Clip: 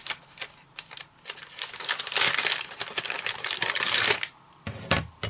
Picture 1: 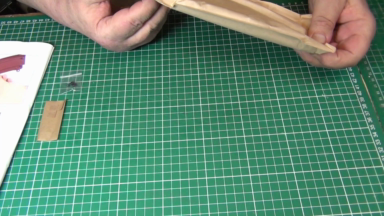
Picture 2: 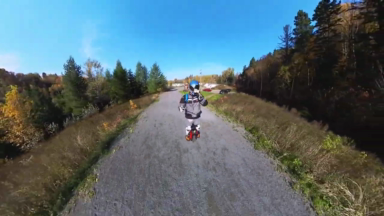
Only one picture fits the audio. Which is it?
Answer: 1